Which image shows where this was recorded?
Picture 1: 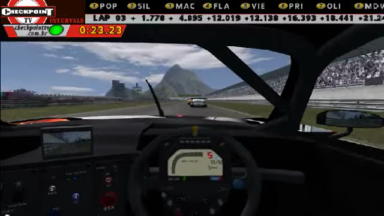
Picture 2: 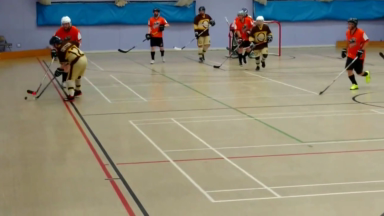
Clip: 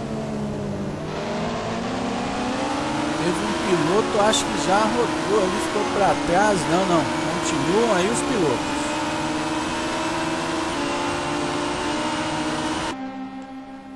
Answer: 1